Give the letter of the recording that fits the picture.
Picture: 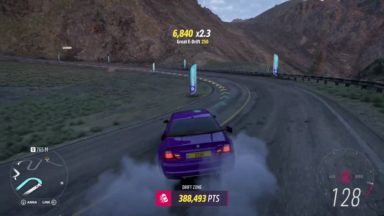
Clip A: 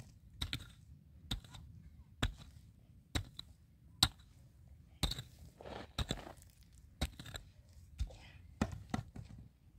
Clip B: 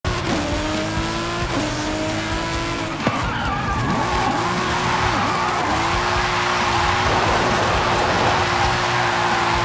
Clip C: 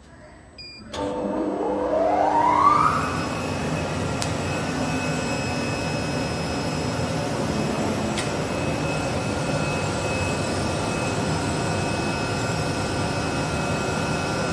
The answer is B